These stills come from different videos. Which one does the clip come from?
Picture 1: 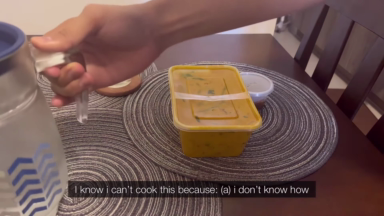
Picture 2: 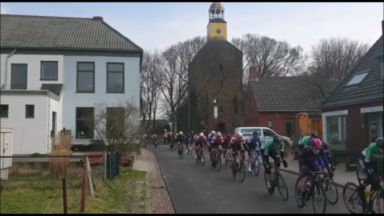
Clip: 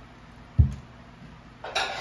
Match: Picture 1